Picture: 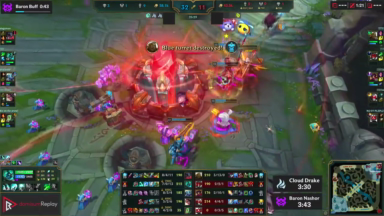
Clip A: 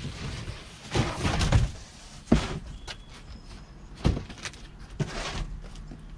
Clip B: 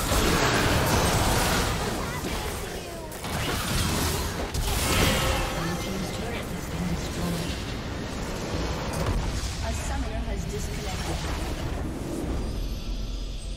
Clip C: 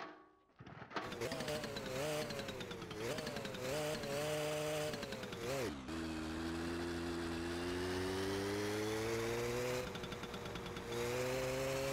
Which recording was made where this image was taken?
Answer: B